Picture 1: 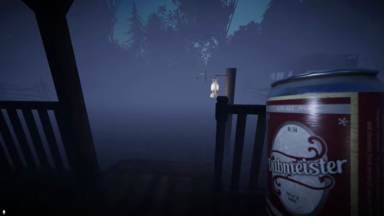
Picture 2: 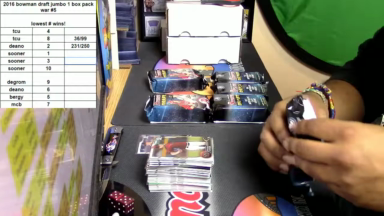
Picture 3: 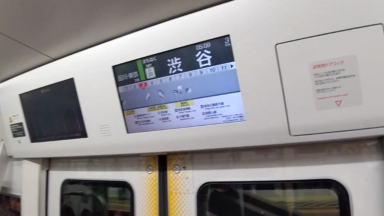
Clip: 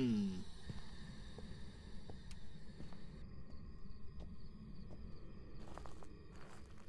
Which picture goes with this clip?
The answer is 1